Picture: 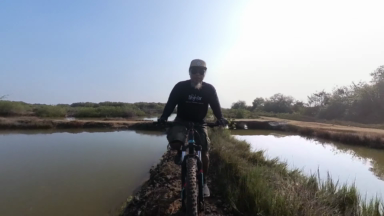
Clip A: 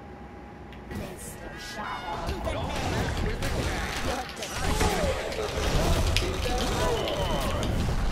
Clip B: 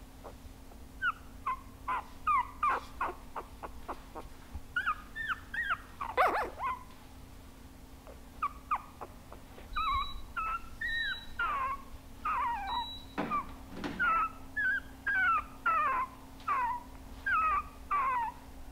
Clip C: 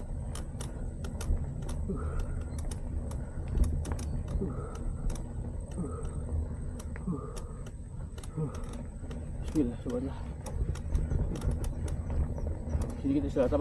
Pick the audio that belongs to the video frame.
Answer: C